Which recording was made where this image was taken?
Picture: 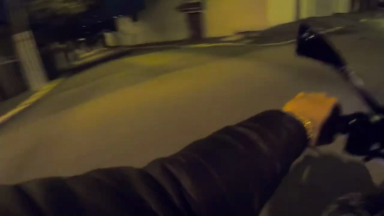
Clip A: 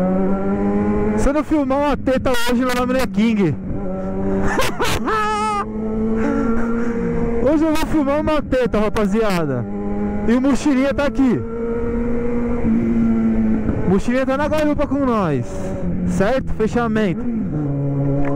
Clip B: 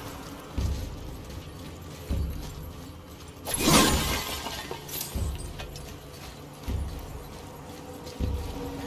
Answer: A